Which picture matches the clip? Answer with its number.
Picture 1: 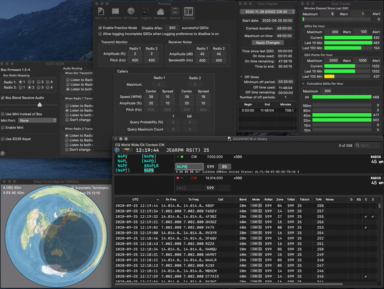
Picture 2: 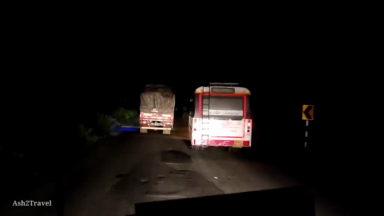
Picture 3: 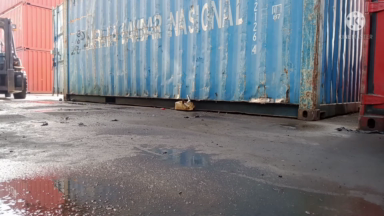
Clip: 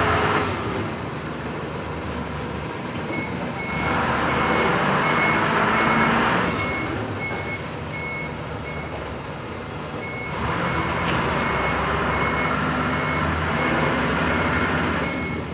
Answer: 3